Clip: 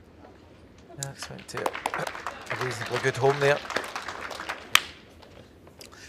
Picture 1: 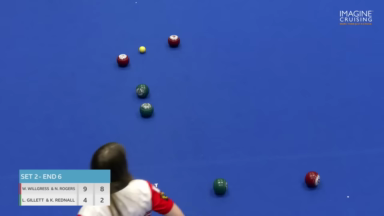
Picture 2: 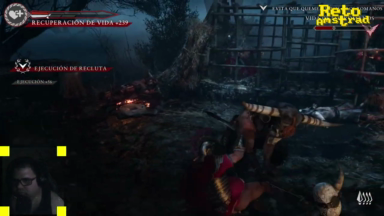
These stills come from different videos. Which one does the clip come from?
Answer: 1